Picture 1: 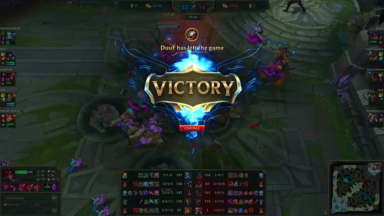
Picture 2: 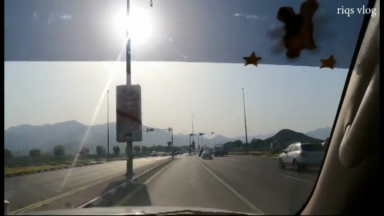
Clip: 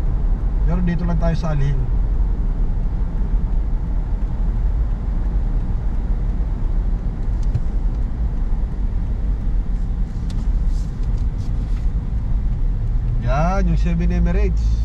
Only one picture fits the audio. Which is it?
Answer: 2